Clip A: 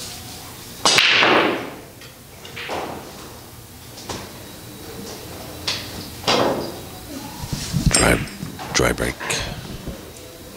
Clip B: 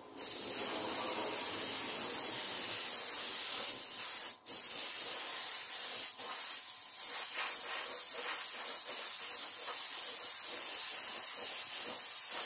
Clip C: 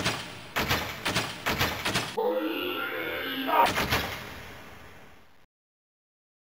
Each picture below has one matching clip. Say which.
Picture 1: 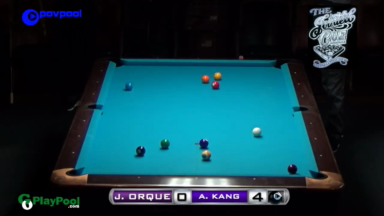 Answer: A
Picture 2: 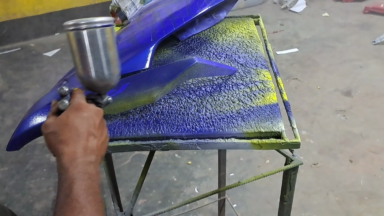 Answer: B